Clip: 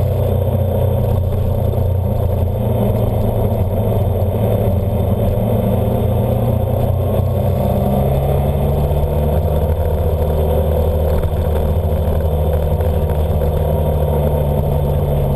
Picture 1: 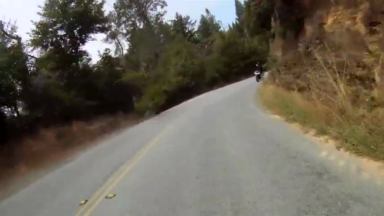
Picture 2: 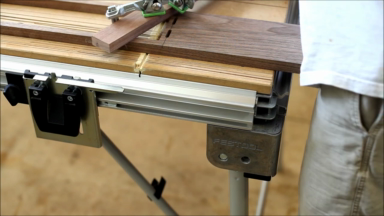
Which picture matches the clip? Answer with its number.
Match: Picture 1